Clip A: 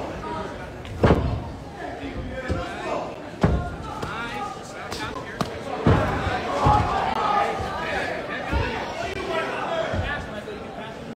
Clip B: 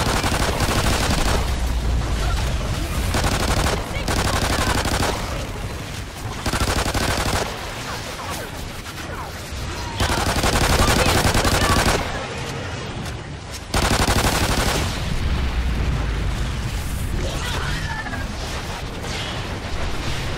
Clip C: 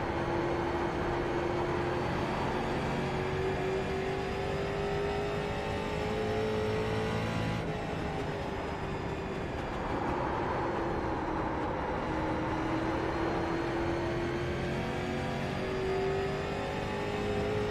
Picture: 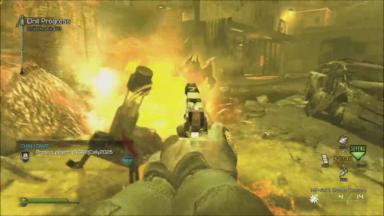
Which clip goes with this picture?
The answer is B